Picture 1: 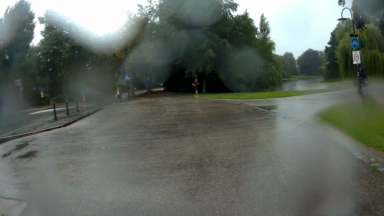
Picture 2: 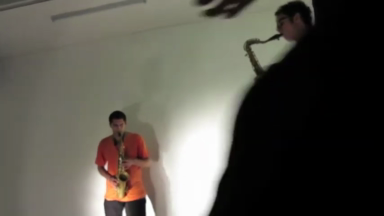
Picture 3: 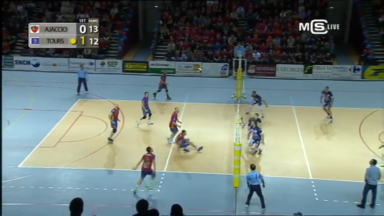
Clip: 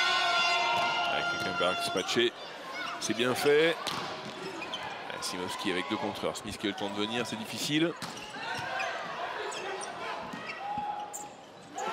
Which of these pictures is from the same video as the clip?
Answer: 3